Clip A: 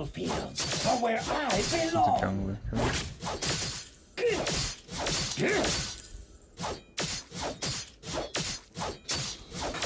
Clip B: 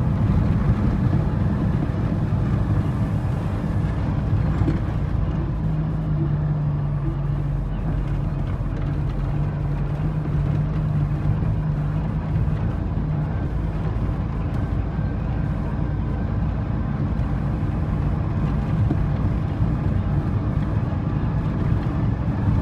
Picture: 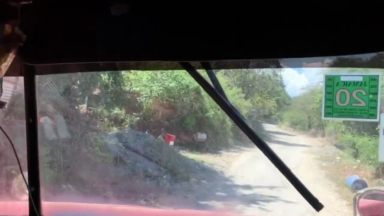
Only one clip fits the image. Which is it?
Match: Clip B